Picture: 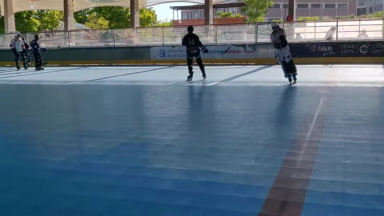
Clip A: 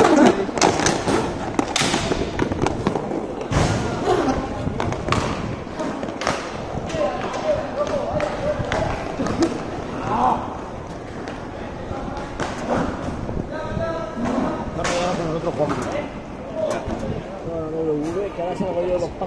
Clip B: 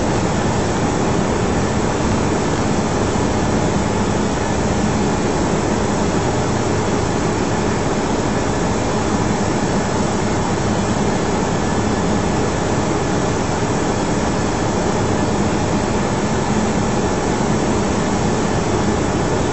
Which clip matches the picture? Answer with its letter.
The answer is A